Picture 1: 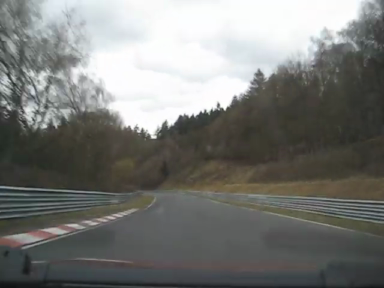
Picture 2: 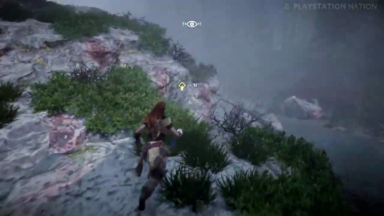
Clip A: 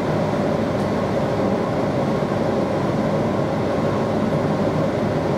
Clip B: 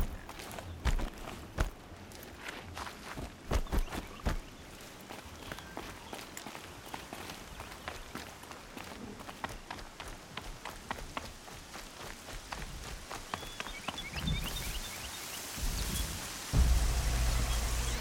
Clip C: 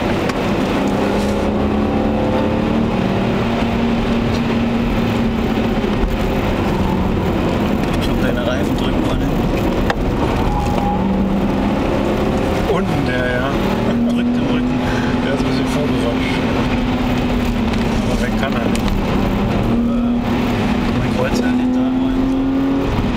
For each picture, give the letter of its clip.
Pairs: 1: C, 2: B